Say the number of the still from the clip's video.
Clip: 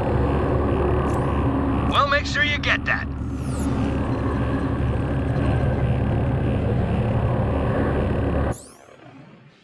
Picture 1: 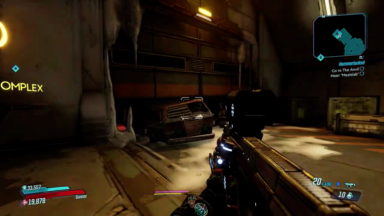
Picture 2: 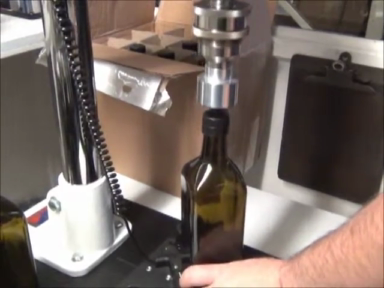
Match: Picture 1